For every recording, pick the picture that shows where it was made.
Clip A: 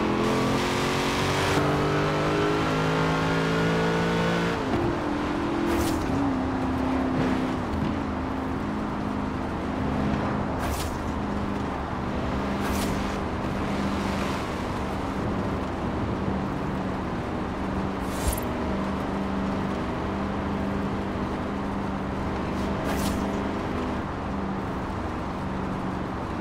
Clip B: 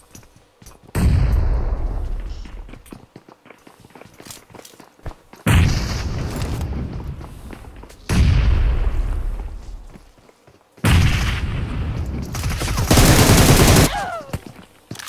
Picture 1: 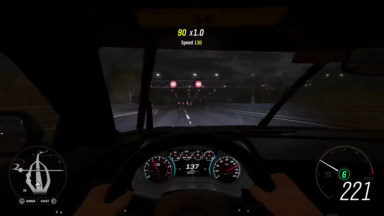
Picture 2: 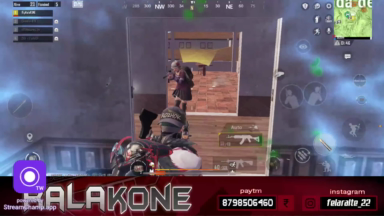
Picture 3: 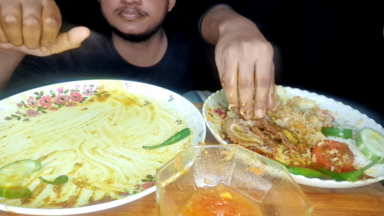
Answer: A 1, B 2